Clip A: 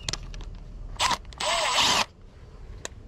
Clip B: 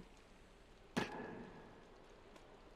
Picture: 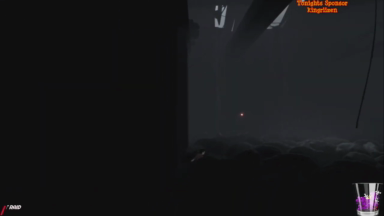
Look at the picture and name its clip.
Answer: B